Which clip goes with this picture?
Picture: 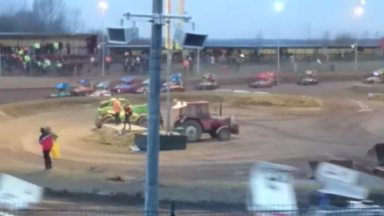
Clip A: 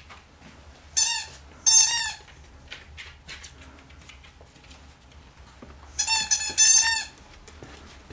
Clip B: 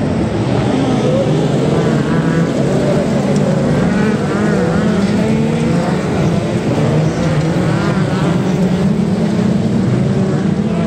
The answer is B